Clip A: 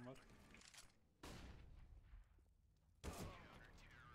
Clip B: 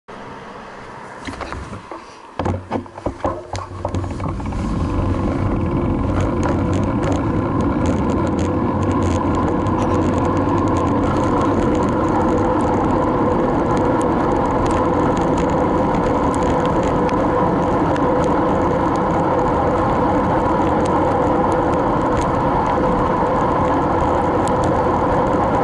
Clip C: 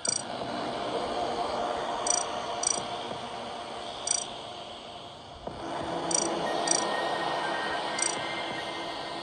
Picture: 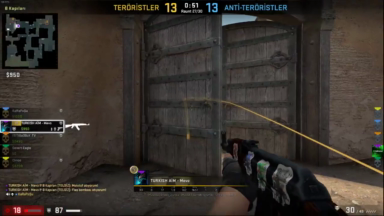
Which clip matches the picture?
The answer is A